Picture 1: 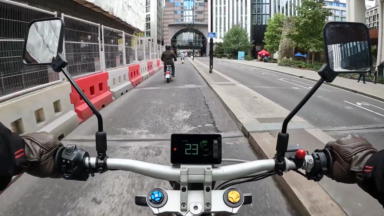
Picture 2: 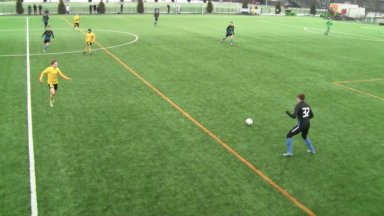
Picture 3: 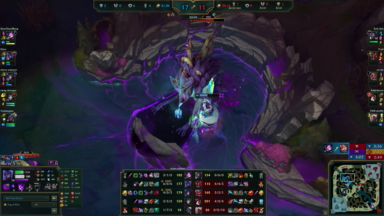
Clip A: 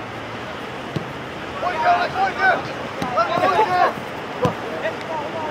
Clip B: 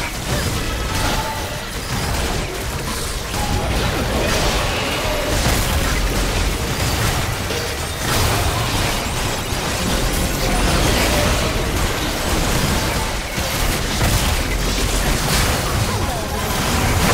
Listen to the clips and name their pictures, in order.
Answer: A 2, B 3